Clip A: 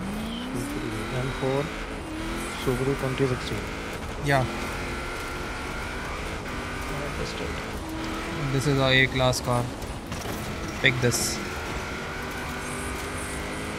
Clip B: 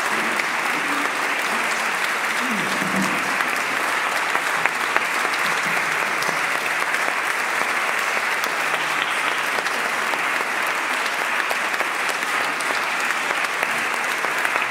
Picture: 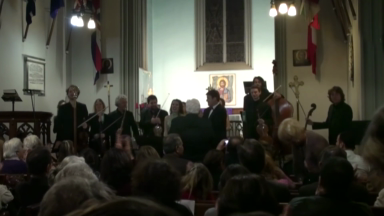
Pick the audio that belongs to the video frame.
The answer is B